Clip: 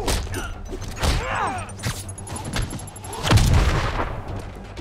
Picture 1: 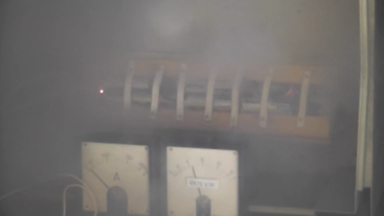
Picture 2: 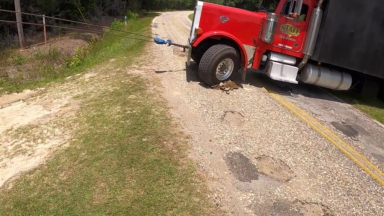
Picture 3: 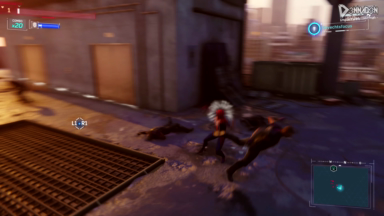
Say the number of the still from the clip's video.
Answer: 3